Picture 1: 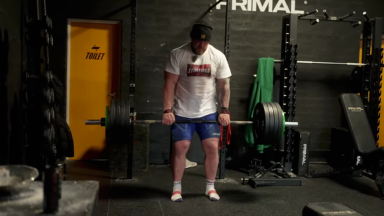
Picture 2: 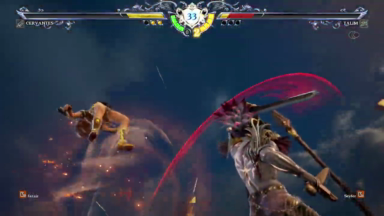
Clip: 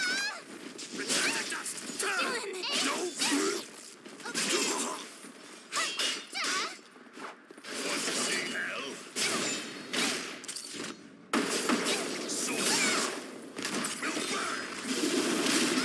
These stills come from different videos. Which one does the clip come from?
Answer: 2